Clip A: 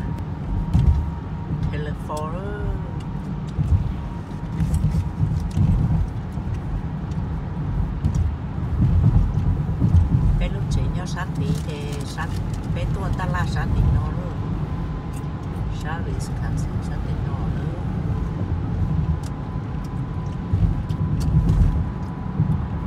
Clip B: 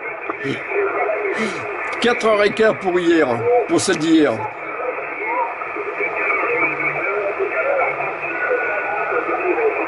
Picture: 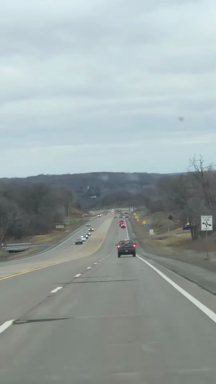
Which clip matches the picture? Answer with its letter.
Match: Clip A